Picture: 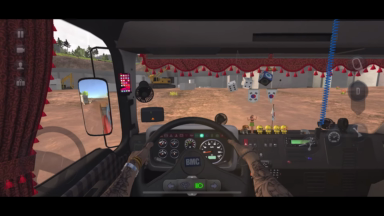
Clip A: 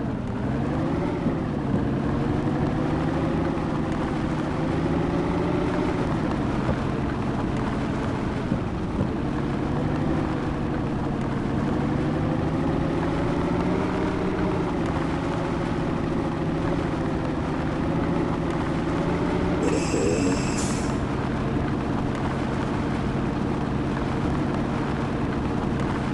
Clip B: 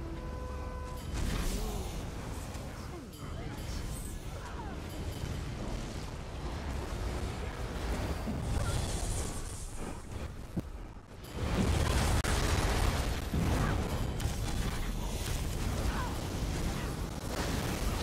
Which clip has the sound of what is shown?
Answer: A